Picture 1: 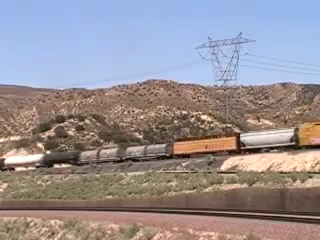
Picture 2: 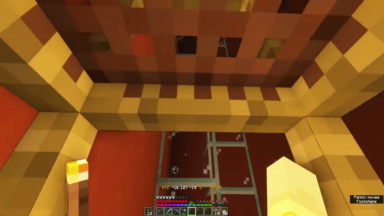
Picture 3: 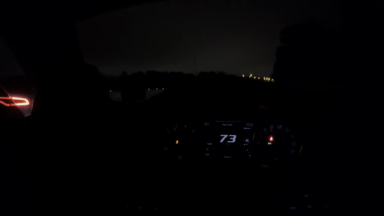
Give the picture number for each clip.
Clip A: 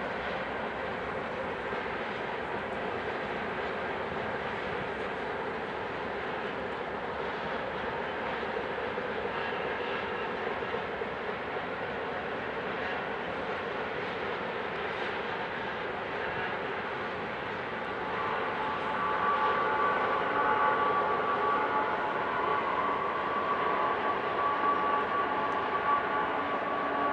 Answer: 1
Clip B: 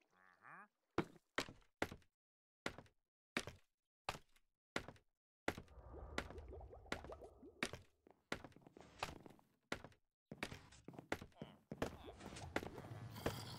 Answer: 2